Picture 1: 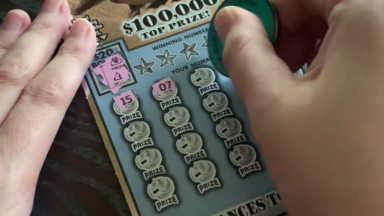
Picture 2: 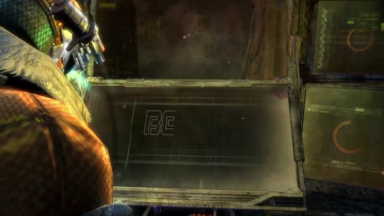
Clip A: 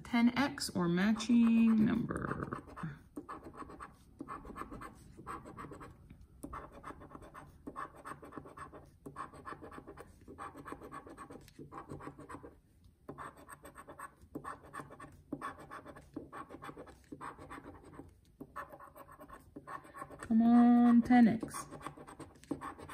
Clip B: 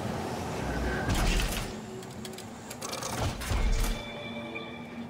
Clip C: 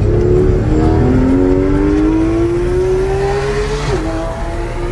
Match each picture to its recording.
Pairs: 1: A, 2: B